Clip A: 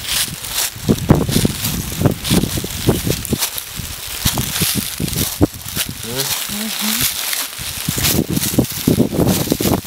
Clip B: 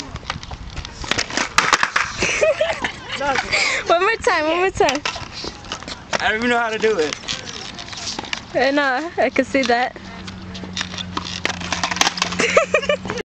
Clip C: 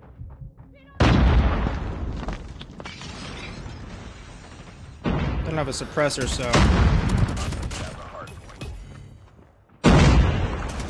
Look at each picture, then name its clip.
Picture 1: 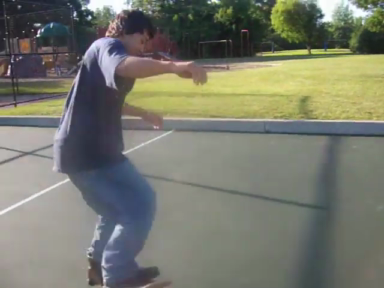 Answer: B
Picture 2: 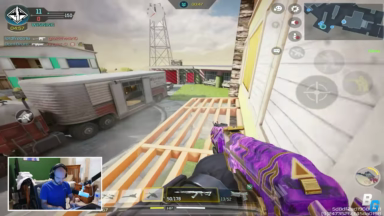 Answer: C